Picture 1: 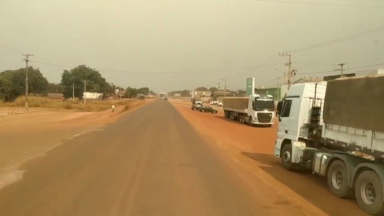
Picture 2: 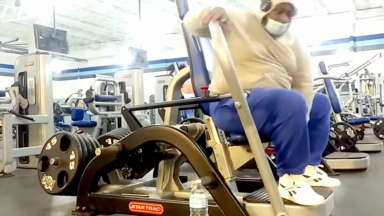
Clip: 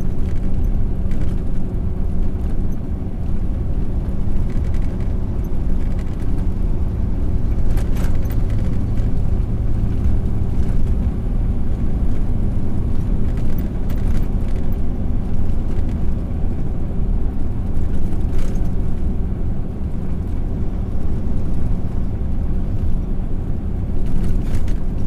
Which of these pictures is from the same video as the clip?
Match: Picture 1